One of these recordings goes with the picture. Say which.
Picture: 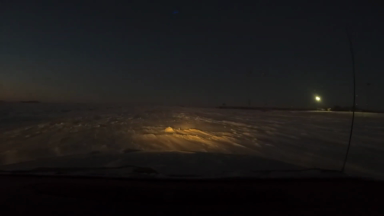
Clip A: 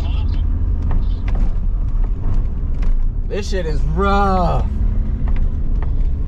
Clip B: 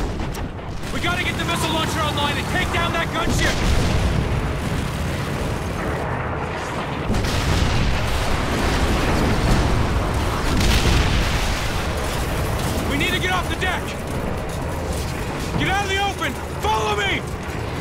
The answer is A